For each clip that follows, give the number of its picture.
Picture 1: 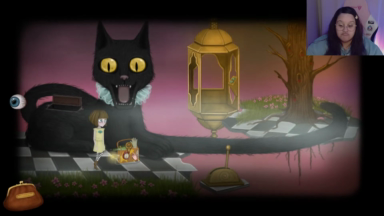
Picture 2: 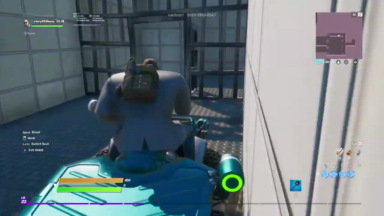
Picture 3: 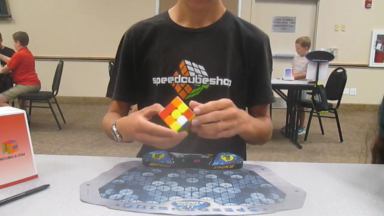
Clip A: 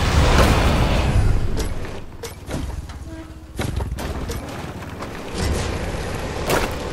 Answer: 2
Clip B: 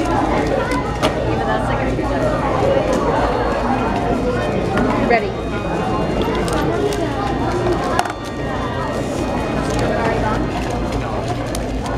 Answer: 3